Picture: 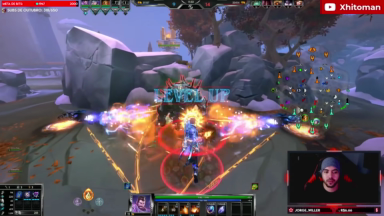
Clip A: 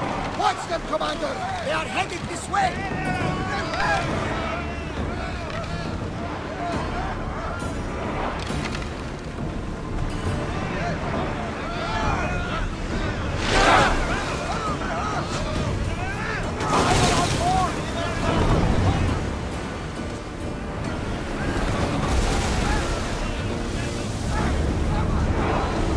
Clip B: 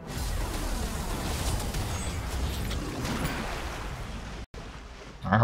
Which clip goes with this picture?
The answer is B